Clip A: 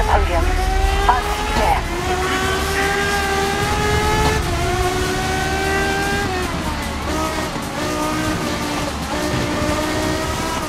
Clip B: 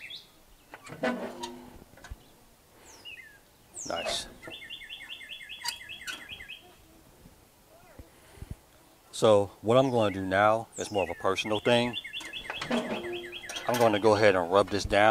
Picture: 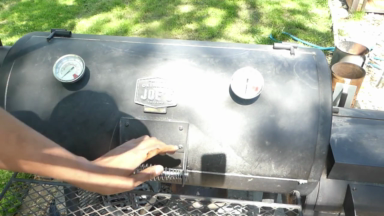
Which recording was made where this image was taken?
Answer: B